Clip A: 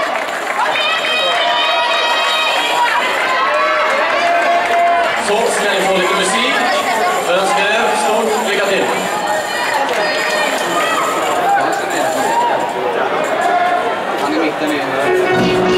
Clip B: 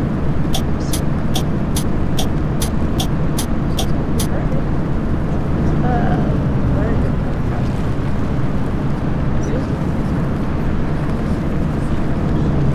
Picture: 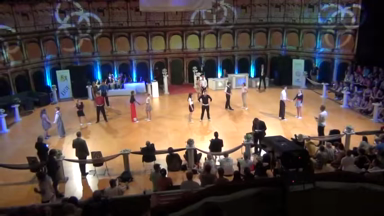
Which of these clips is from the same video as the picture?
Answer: A